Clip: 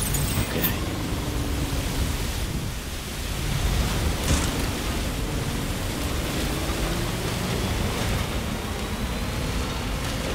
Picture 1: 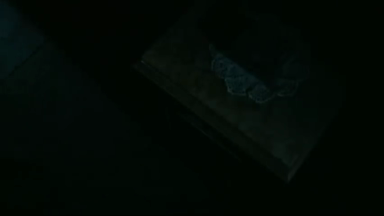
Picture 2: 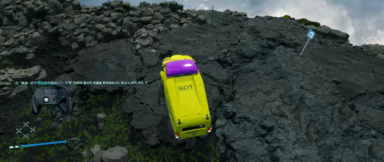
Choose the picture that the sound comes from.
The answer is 2